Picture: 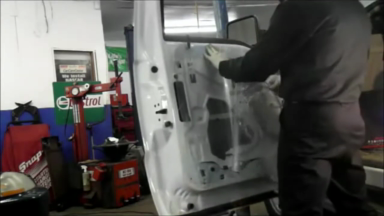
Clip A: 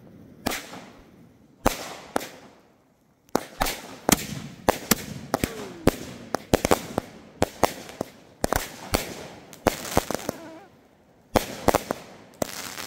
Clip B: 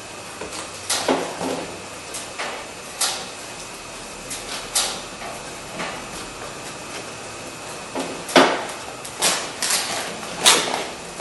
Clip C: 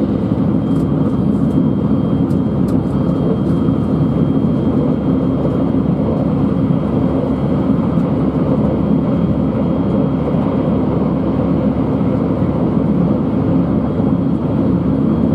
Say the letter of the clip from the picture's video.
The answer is B